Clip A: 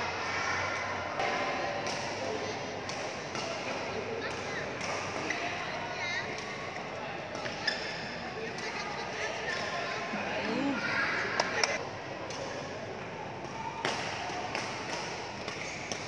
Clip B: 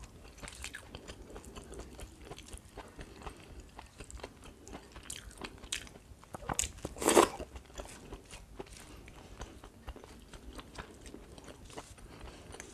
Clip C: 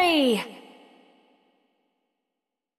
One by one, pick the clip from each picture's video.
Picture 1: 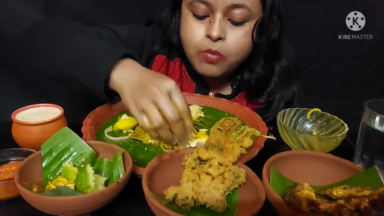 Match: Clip B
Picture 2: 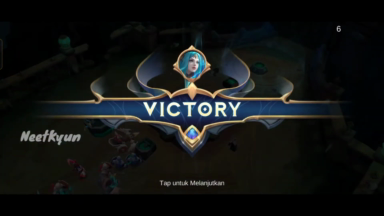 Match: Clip C